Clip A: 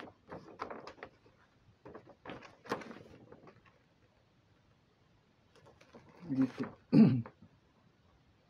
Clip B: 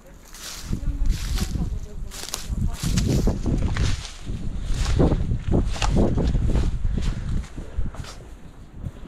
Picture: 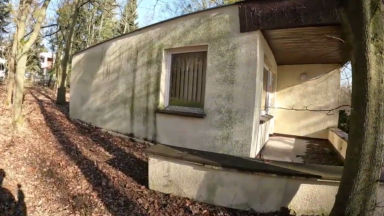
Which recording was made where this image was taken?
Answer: B